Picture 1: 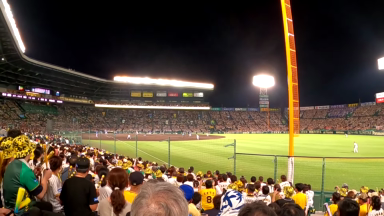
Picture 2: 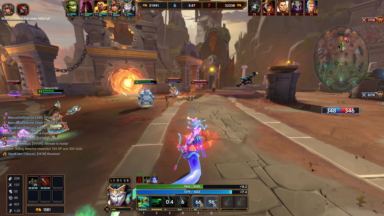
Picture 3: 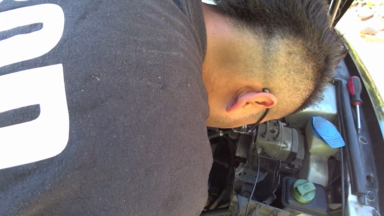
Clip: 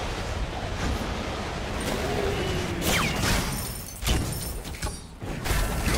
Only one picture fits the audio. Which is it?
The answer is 2